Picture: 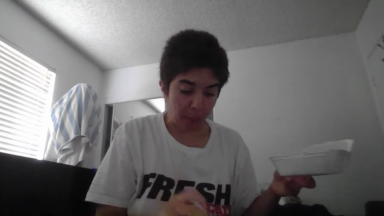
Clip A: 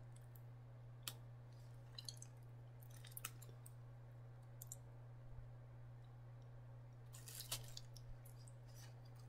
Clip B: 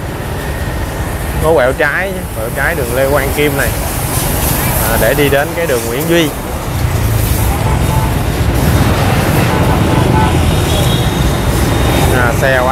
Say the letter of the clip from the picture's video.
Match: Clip A